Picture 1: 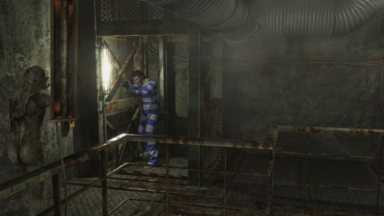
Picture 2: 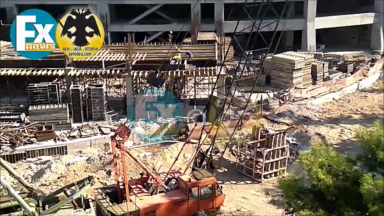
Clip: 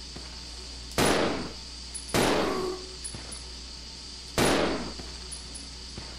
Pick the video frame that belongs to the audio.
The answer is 1